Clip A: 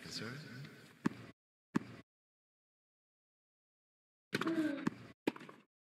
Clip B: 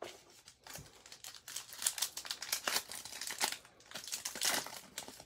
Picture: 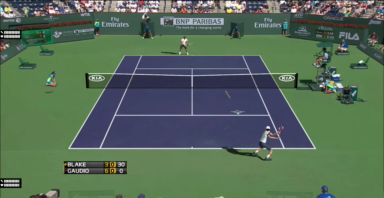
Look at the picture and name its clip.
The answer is A